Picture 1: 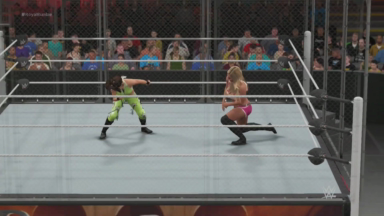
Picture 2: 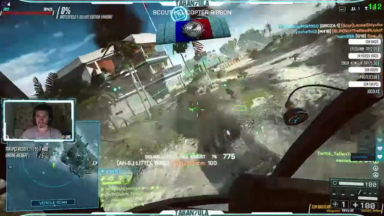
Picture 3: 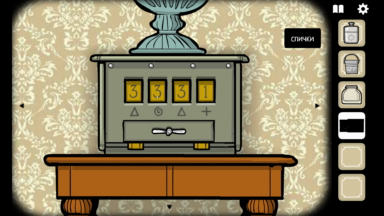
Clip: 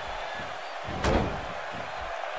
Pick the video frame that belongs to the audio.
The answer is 1